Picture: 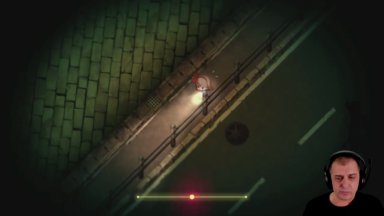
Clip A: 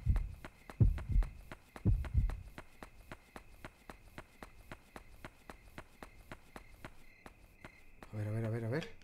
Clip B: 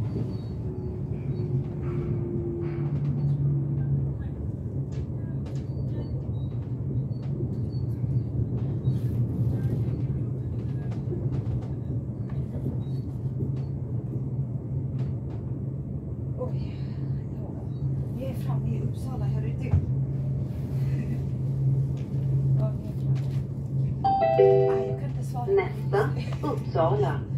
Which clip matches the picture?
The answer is A